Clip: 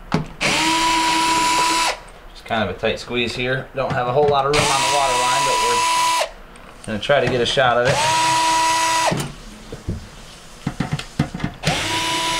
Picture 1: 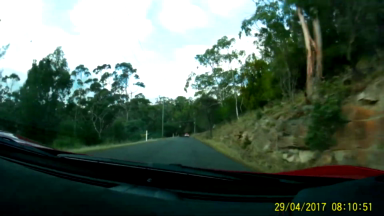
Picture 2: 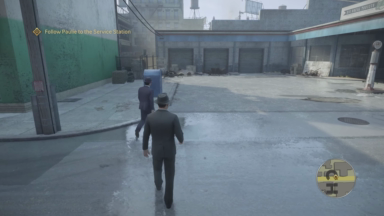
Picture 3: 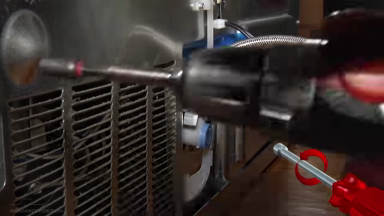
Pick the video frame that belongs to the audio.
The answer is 3